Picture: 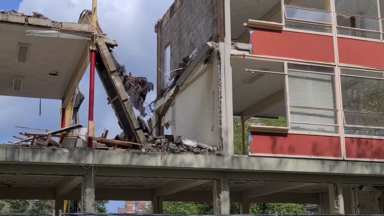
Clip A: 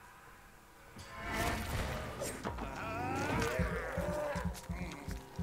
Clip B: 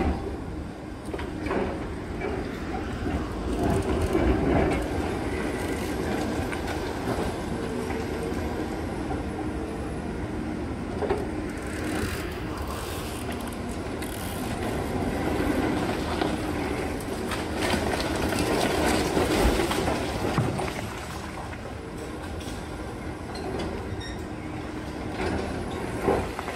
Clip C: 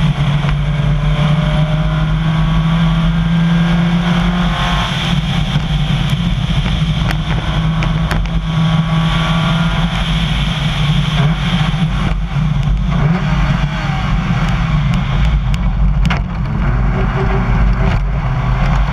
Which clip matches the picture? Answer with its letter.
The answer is B